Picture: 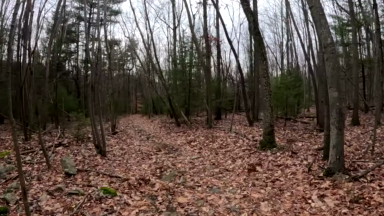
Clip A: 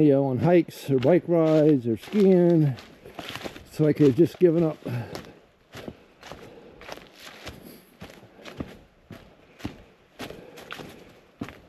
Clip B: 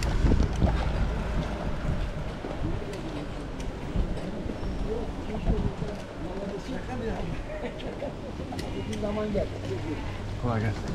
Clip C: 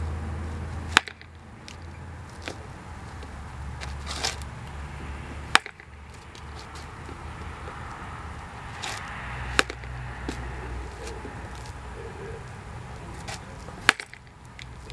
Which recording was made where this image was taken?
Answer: A